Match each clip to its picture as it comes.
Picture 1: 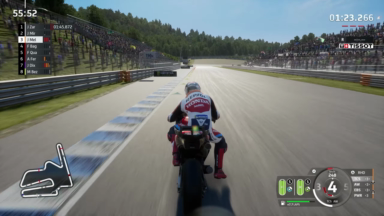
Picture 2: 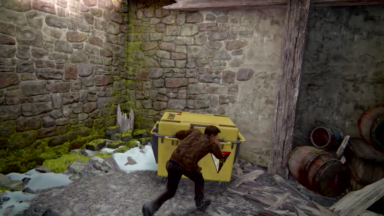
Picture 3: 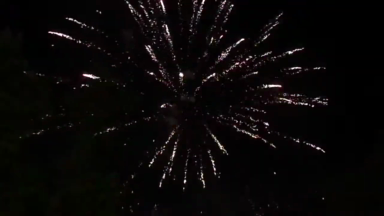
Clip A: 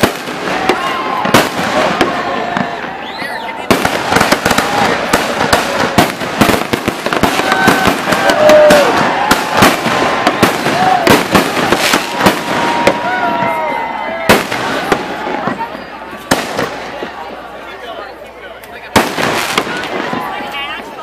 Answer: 3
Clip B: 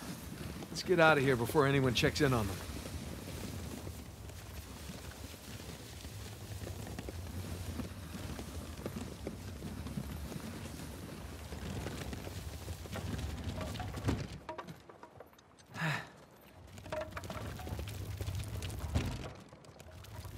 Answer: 2